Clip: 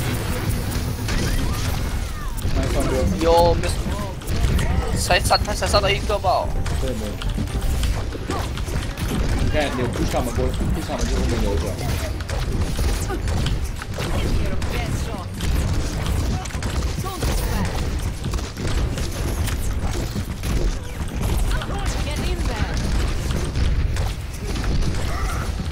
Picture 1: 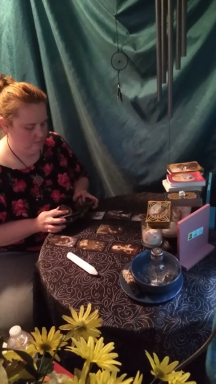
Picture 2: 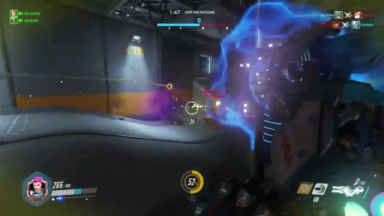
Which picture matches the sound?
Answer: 2